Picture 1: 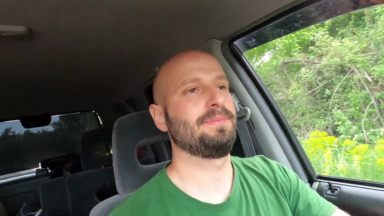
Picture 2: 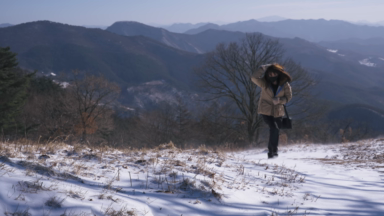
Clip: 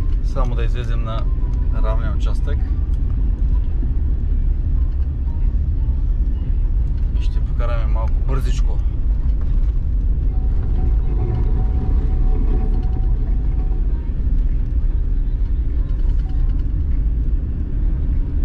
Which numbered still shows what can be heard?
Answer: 1